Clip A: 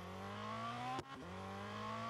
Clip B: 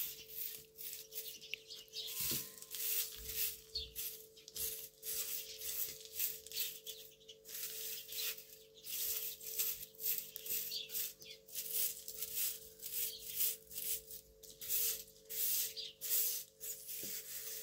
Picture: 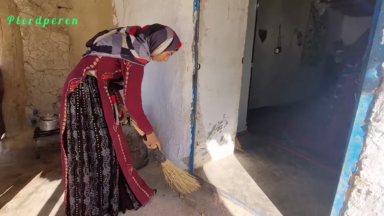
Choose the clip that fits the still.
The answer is B